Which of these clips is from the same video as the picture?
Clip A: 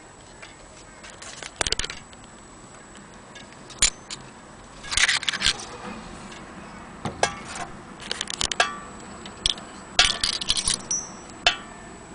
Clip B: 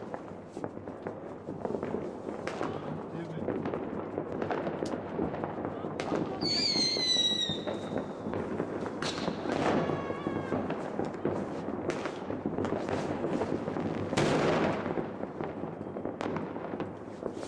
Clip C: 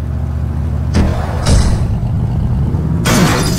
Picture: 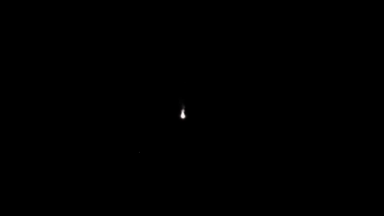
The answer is B